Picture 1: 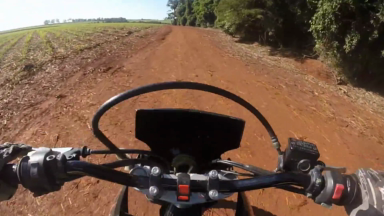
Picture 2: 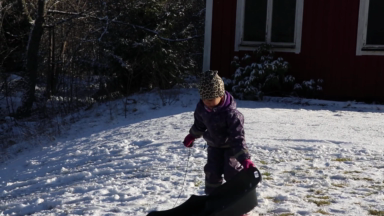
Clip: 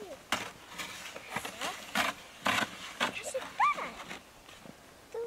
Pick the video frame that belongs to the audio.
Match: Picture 2